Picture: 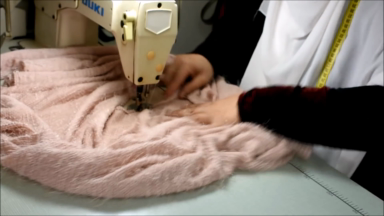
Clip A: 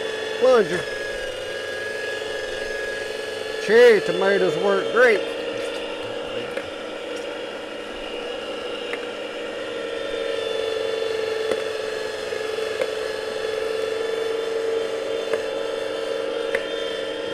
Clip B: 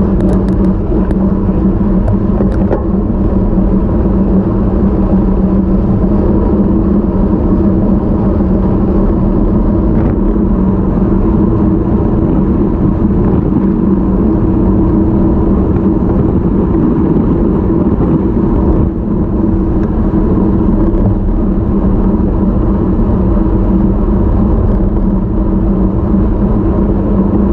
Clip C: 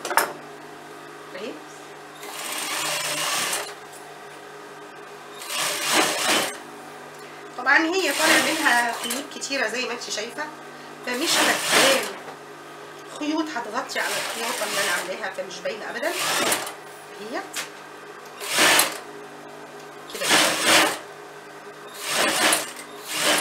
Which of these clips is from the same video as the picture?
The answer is C